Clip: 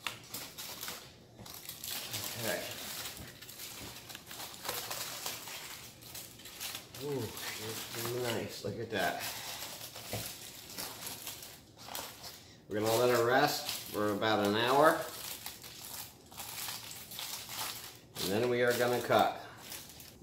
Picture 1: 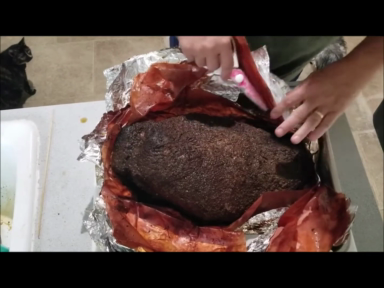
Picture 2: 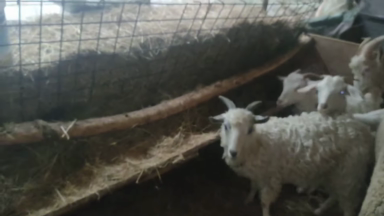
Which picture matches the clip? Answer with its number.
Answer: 1